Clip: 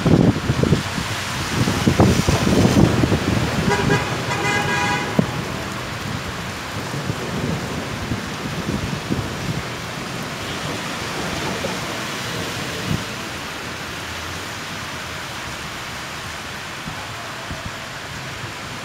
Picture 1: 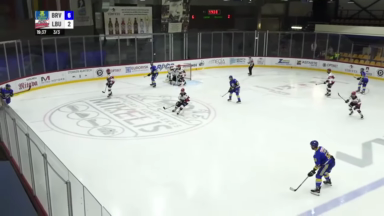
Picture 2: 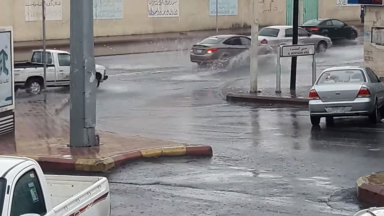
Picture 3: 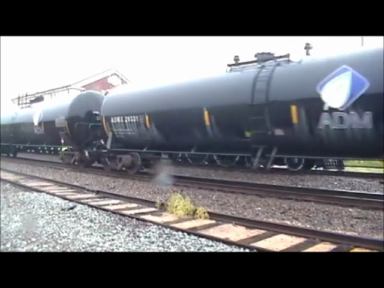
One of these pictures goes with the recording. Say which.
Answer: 2